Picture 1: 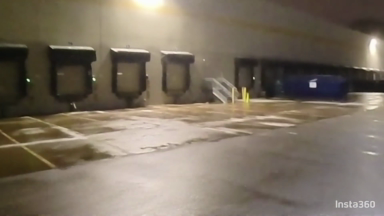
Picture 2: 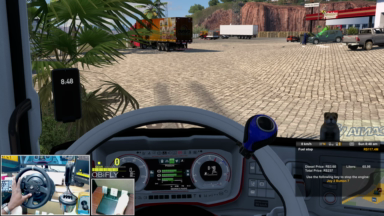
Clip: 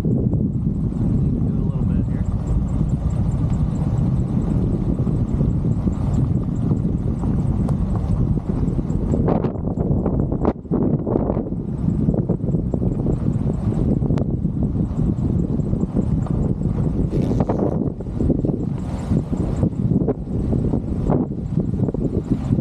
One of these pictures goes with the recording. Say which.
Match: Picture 1